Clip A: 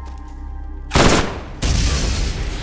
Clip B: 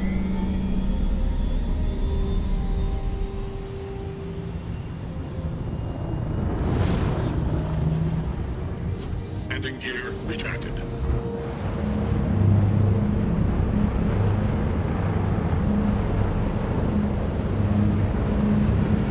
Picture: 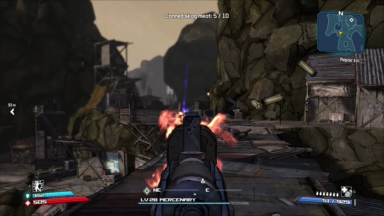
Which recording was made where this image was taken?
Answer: A